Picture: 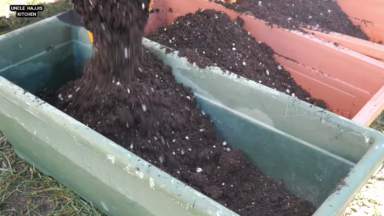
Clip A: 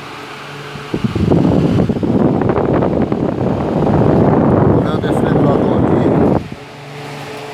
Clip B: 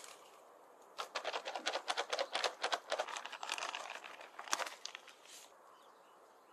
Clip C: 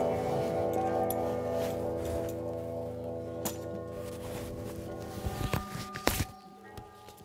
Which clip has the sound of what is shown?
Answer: B